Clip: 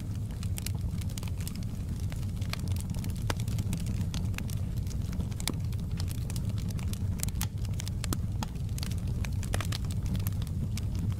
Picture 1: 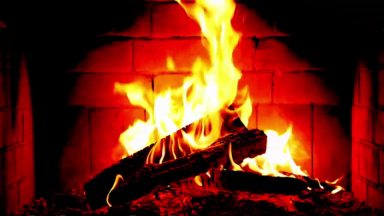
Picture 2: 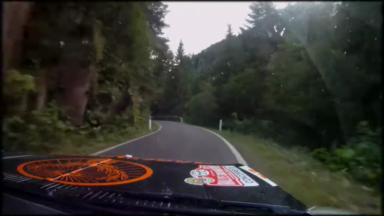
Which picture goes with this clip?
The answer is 1